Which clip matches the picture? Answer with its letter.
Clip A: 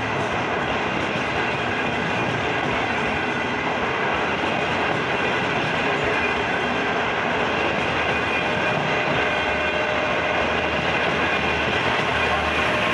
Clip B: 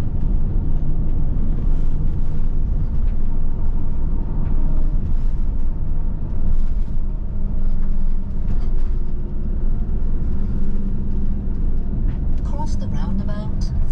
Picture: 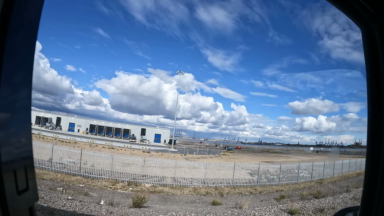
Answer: B